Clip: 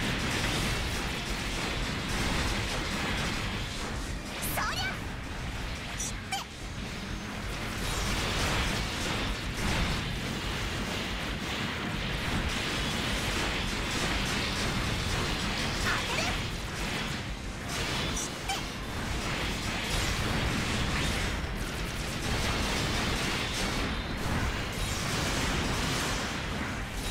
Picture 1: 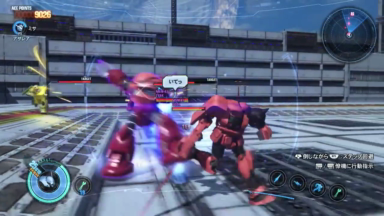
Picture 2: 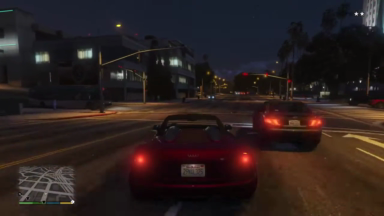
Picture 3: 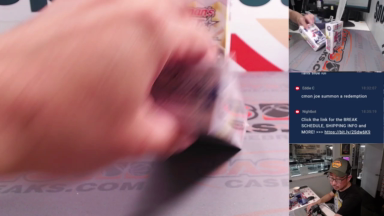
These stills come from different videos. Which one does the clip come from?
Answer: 1